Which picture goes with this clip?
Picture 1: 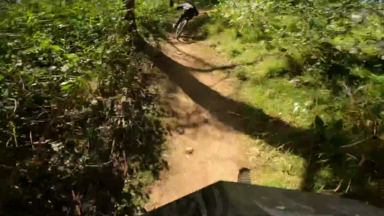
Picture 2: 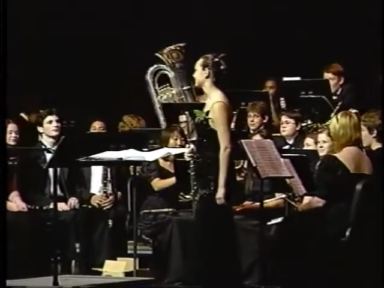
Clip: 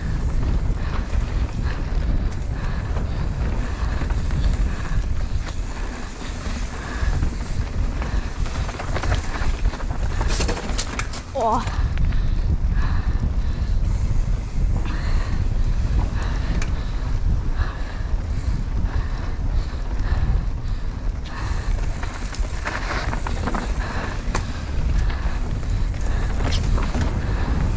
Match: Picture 1